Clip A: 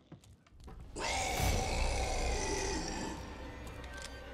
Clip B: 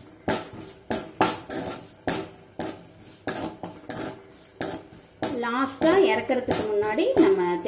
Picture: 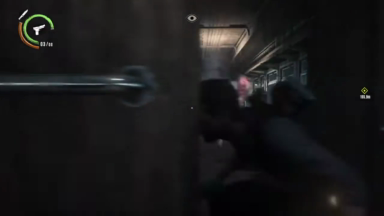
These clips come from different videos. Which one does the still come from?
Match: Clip A